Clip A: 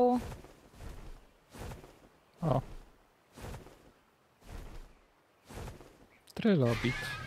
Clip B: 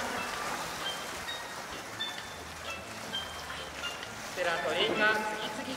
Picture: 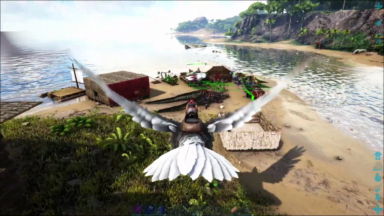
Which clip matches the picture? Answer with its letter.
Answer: A